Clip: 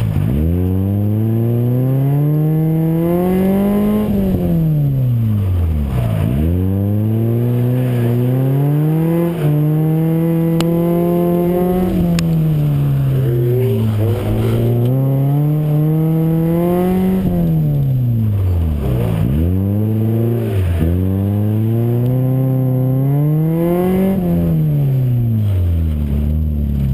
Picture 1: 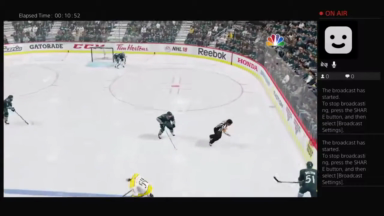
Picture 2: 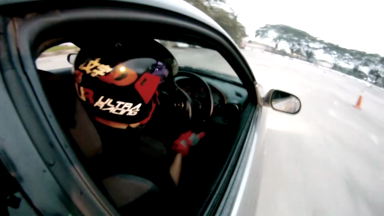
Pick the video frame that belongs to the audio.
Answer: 2